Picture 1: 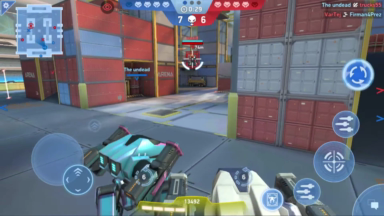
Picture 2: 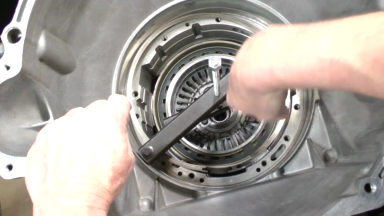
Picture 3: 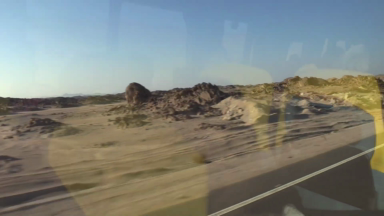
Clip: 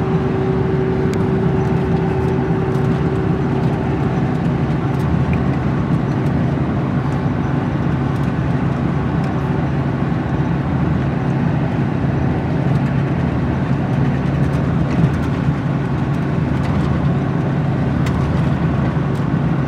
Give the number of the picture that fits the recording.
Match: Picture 3